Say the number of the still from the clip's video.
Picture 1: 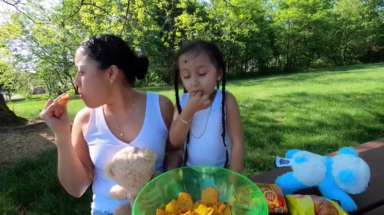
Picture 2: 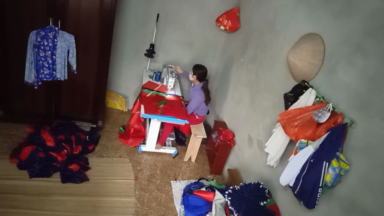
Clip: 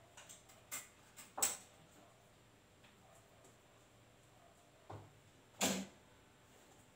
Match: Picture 2